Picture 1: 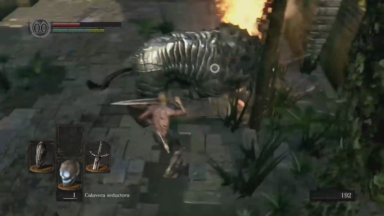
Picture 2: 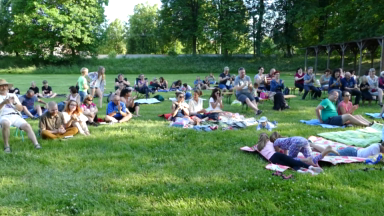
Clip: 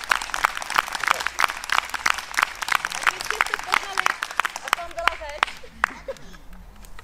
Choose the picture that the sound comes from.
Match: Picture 2